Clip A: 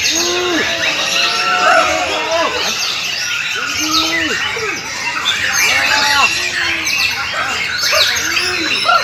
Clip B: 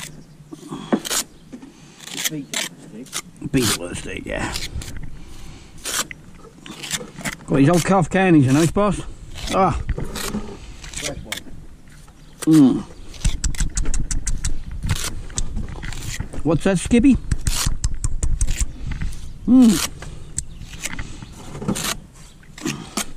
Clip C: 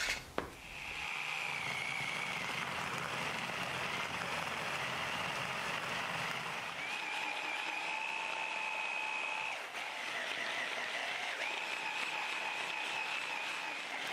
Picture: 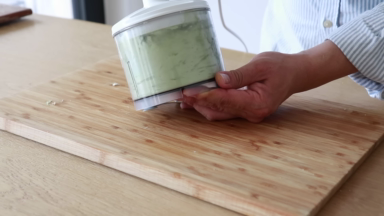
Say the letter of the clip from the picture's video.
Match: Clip C